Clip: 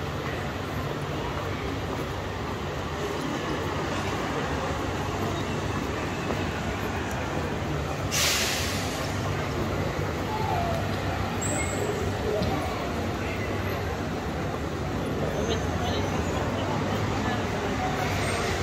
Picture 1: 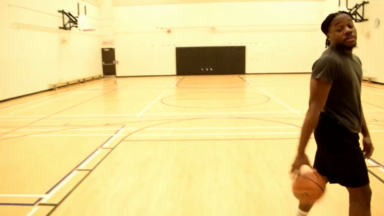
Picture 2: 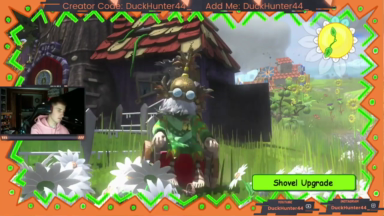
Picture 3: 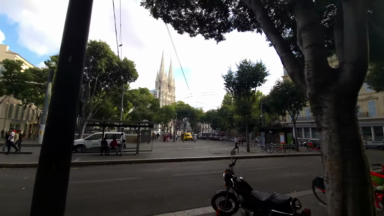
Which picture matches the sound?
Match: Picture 3